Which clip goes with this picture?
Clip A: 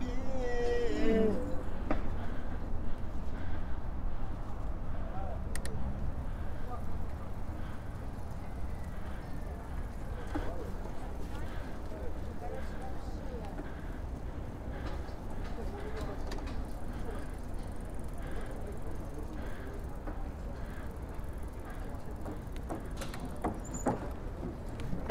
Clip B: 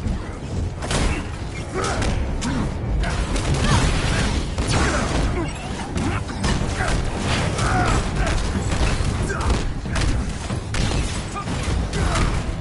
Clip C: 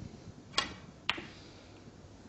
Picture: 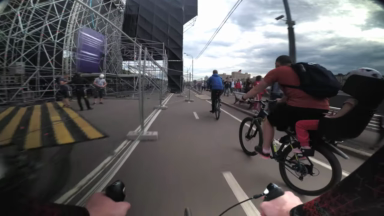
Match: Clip A